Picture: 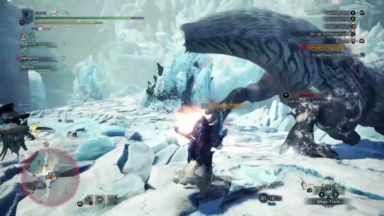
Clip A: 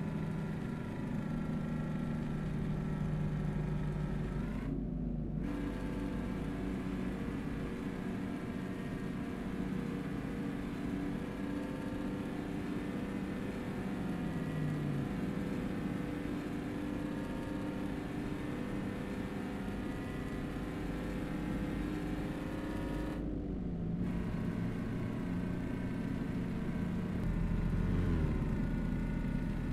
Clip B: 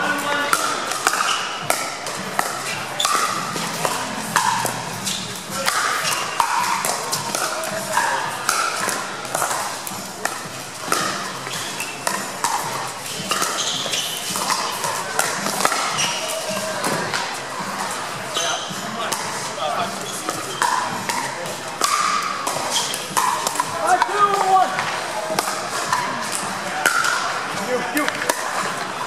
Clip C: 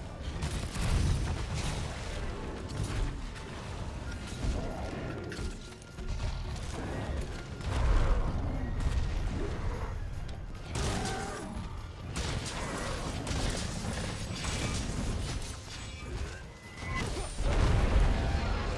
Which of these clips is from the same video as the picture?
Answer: C